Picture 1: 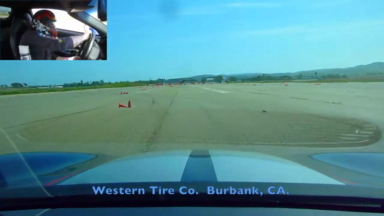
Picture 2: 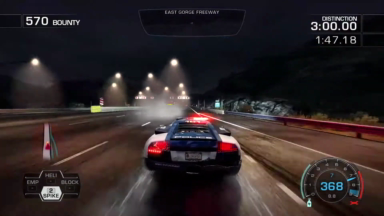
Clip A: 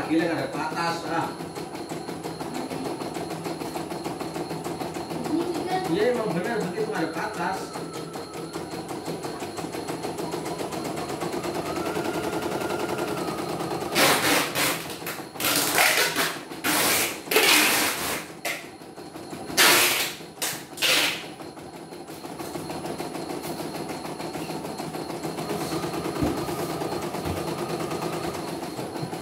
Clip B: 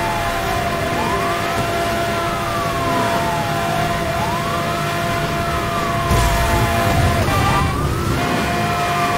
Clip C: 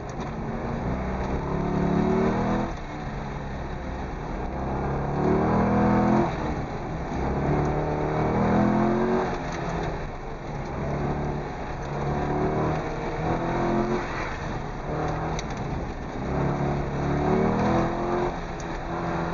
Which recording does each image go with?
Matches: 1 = C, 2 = B